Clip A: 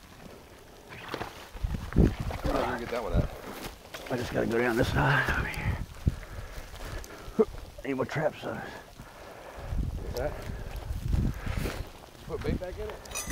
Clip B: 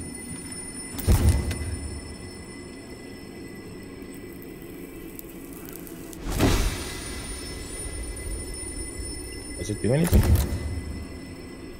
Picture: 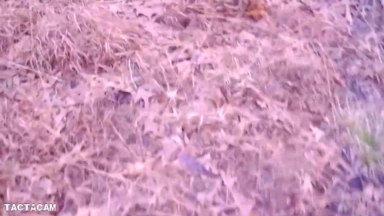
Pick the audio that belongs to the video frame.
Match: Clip A